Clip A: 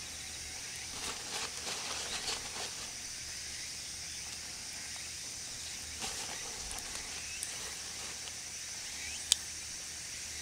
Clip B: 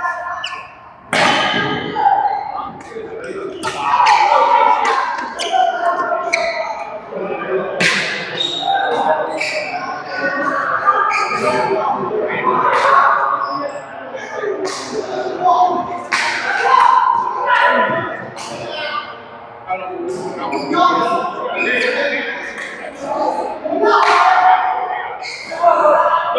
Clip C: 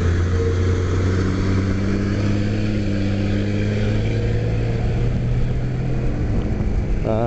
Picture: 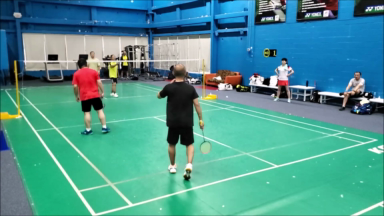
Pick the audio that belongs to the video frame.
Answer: B